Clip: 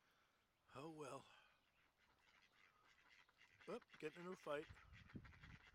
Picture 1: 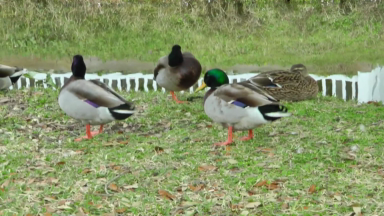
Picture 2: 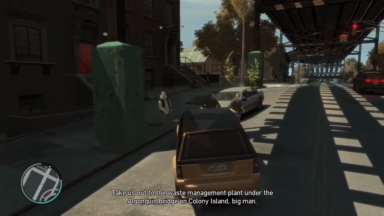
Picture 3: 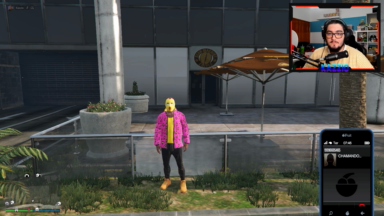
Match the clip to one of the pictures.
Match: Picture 1